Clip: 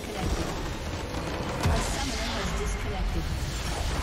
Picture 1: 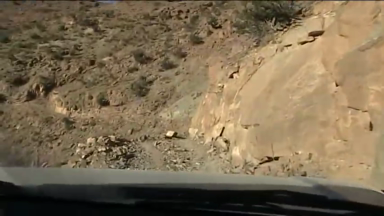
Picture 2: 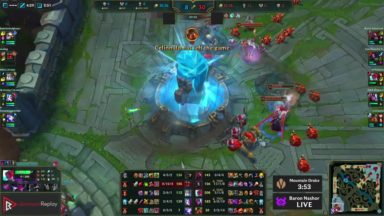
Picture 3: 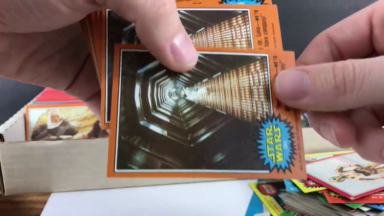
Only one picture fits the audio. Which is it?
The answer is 2